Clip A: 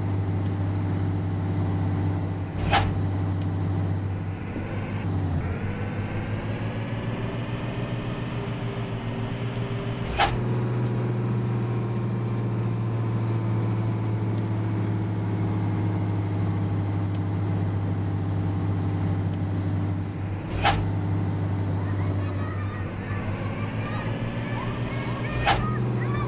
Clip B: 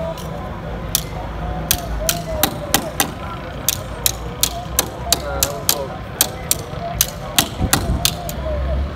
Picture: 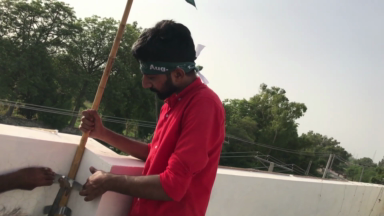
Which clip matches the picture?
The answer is B